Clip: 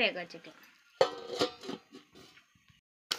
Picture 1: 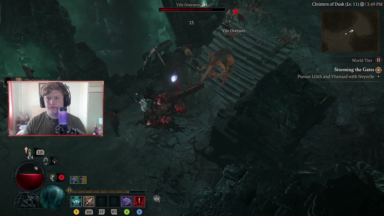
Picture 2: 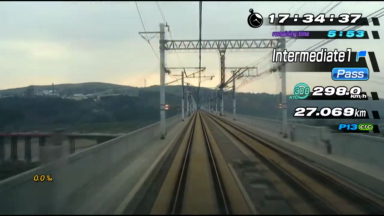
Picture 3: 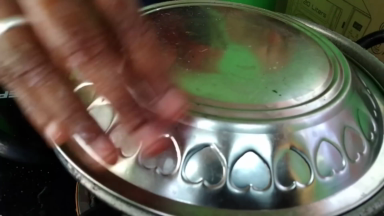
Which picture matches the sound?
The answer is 3